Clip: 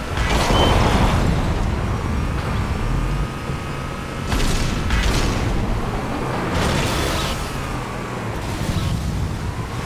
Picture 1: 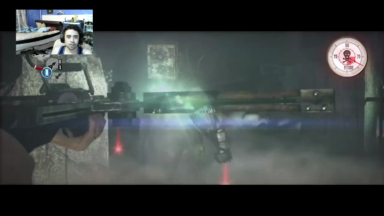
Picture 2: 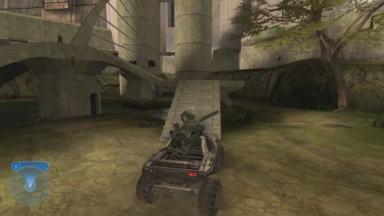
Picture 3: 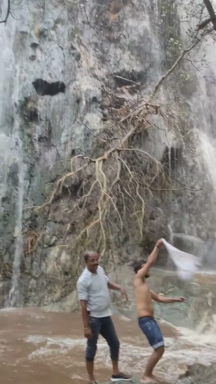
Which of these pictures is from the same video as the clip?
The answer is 2